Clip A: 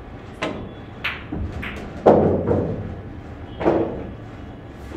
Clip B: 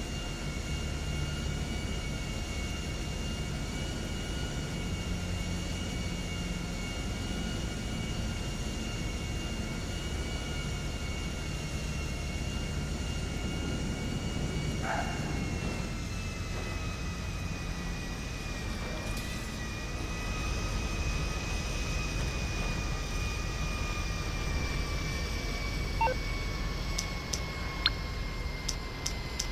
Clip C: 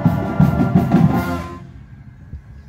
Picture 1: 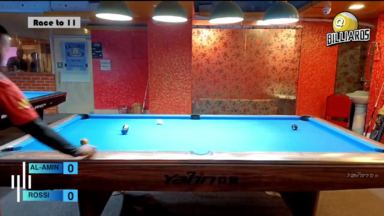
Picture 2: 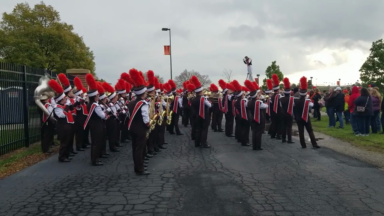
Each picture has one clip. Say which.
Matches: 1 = A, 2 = C